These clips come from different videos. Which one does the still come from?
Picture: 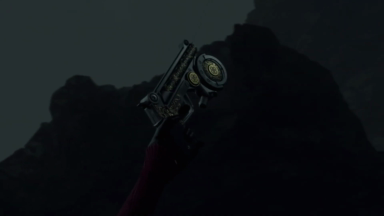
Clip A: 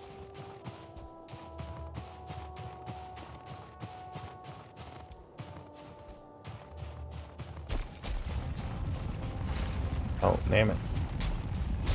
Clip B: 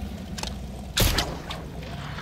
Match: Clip B